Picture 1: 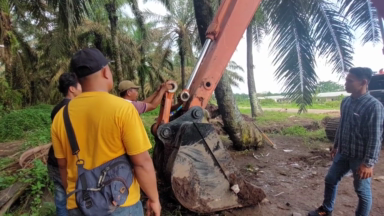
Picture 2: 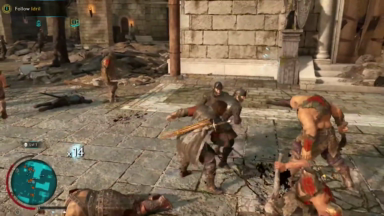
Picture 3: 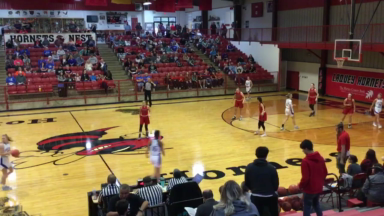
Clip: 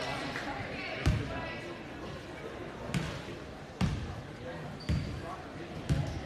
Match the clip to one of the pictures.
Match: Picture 3